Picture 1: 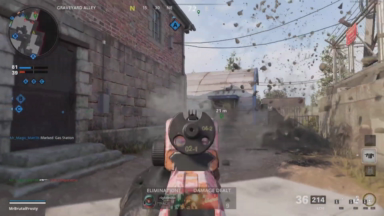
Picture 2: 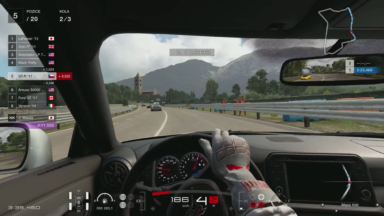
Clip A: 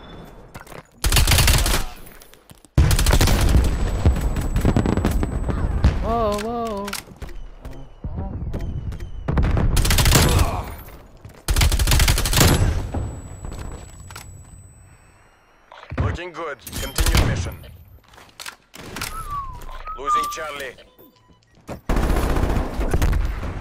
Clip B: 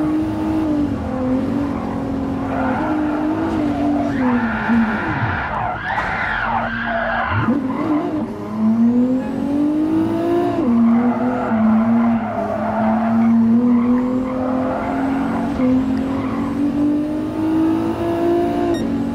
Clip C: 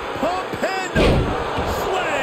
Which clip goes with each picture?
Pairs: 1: A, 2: B